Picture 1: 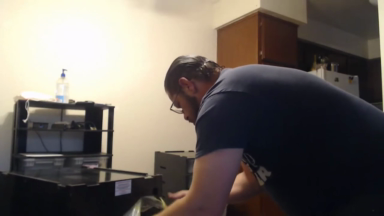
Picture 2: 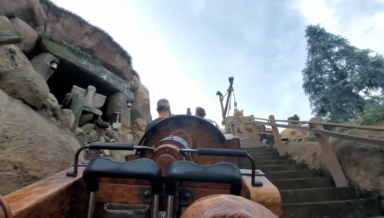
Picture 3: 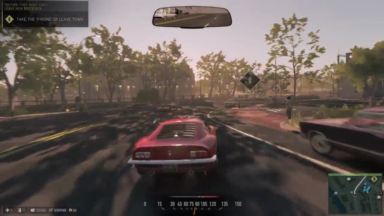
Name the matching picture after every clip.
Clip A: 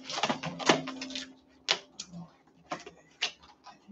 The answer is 1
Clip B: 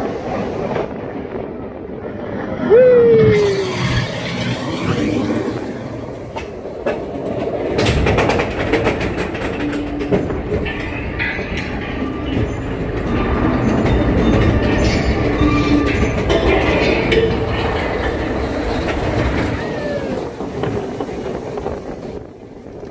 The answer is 2